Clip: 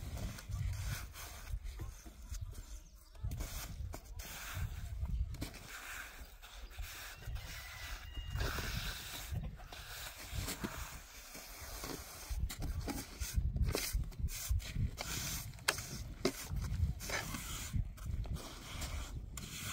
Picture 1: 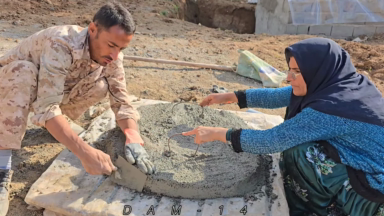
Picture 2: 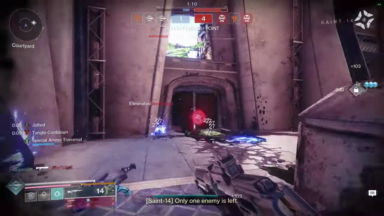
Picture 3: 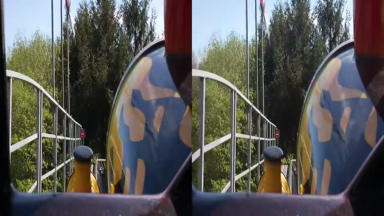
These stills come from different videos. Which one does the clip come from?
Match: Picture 1